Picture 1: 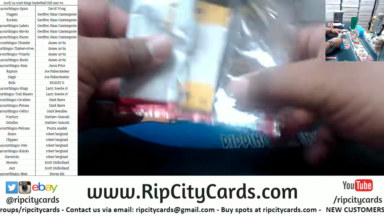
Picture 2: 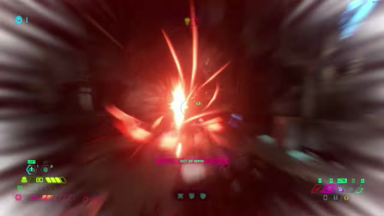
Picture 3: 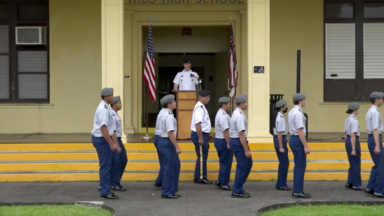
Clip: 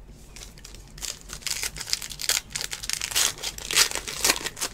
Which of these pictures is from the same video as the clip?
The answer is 1